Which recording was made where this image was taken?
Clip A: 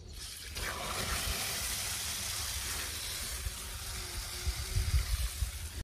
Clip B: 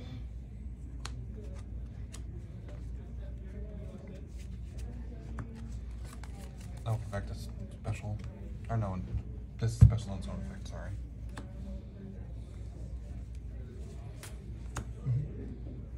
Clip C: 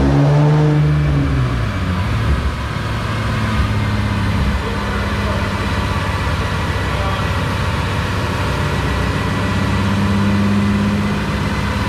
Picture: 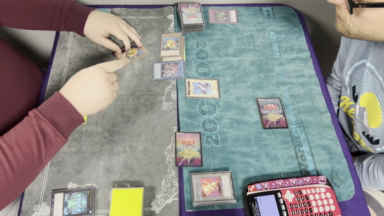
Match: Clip B